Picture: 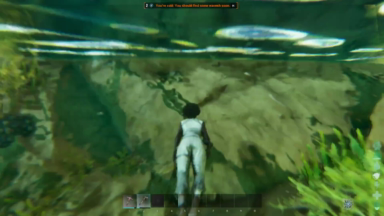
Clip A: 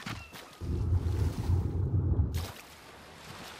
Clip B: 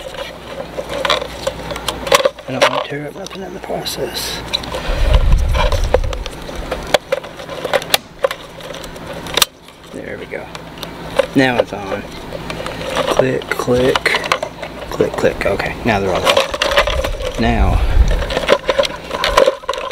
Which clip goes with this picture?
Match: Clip A